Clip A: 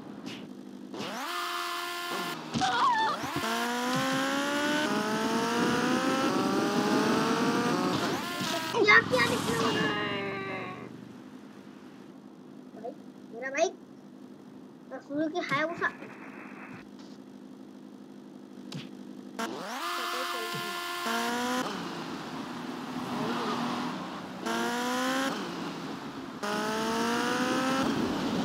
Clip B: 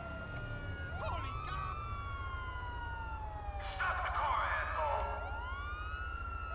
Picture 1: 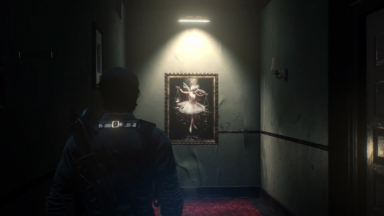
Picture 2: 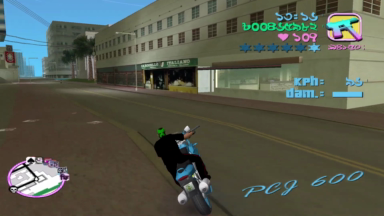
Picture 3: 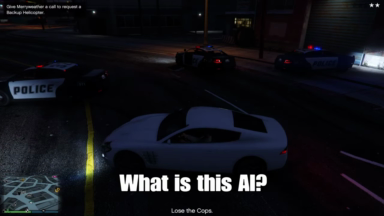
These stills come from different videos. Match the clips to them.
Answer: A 2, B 3